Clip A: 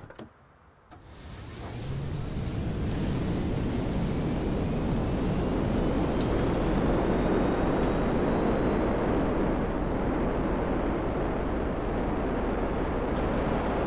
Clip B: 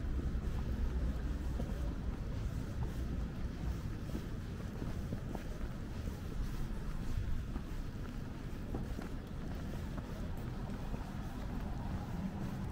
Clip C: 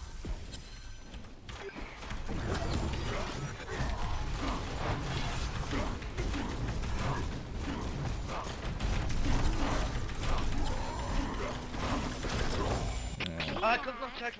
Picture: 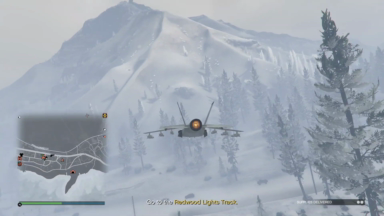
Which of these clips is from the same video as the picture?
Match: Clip A